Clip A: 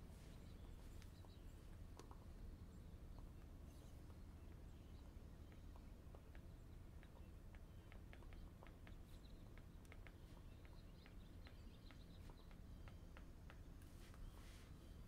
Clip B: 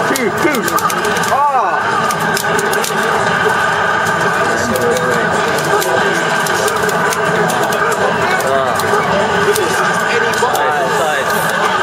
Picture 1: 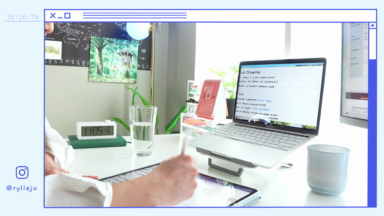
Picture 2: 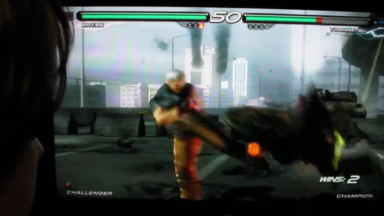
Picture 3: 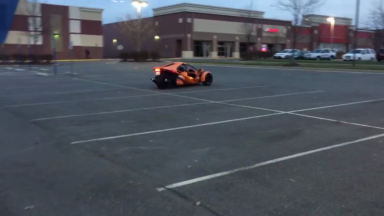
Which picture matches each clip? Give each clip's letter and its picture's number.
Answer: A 1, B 2